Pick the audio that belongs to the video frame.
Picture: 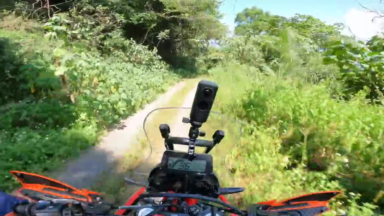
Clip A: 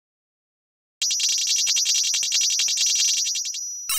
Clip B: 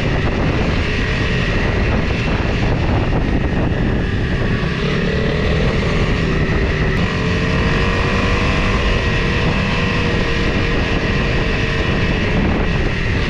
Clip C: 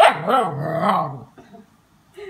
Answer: B